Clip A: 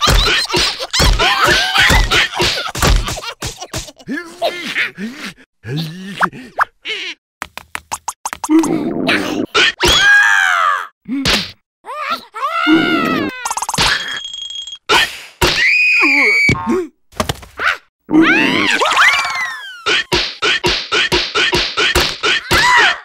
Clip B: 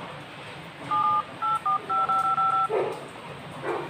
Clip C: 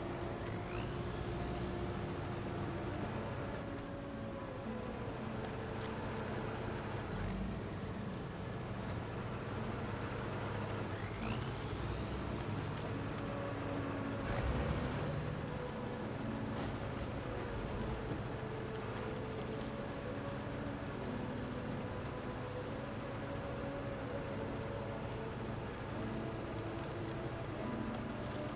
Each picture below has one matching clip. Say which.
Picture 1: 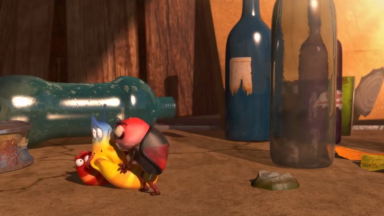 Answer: A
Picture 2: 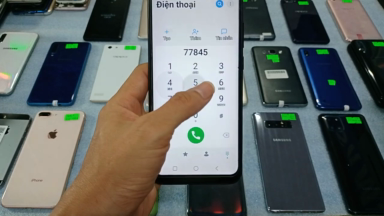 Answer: B